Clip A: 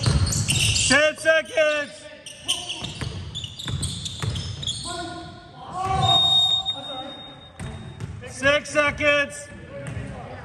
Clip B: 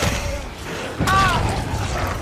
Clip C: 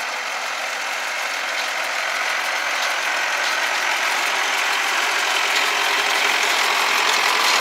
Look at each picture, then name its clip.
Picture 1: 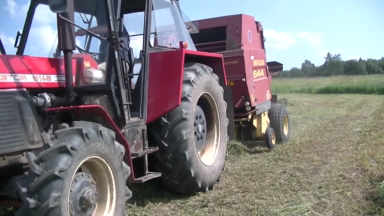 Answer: C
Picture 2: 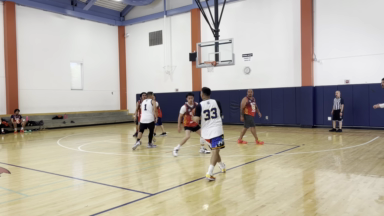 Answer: A